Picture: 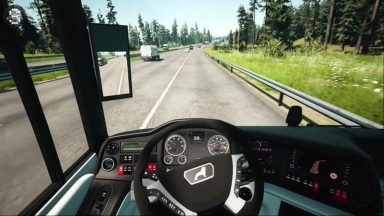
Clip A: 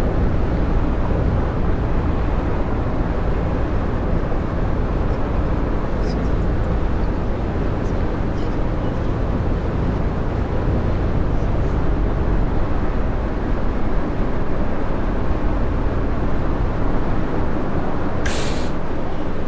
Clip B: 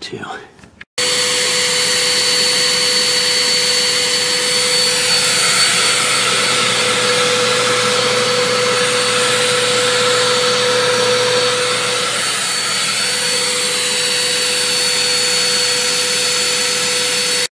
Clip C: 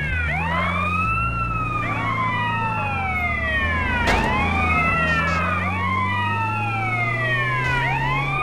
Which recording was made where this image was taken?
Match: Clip A